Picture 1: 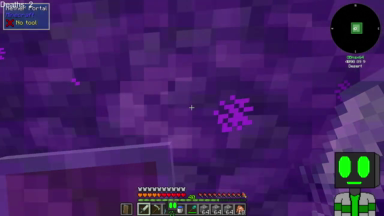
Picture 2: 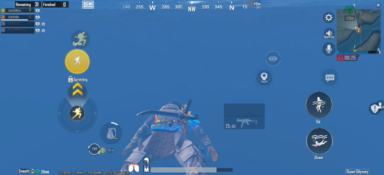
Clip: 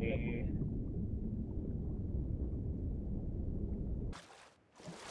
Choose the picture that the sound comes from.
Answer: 2